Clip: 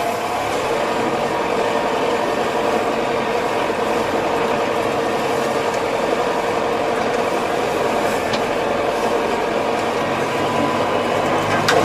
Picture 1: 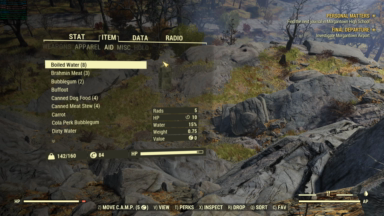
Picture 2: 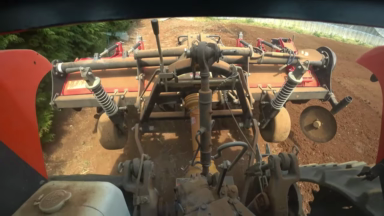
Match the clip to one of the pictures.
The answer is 2